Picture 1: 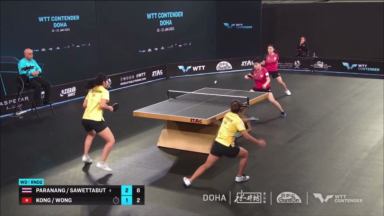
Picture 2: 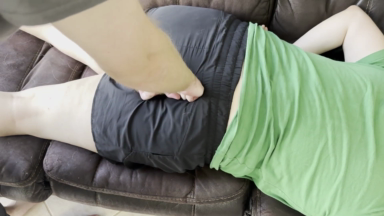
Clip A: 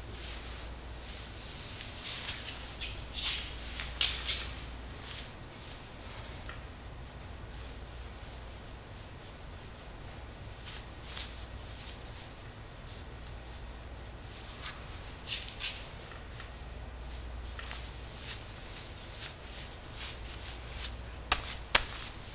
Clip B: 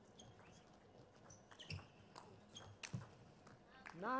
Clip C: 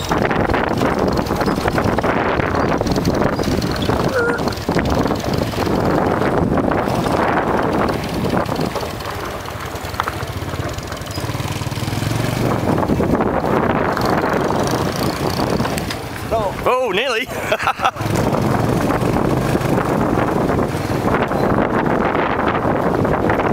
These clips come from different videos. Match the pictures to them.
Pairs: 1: B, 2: A